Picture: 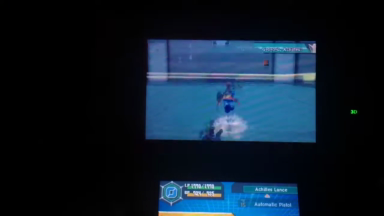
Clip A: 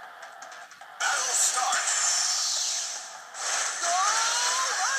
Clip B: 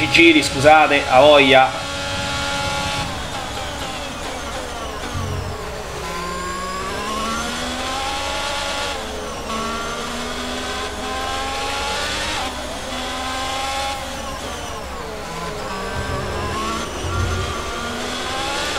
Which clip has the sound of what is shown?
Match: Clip A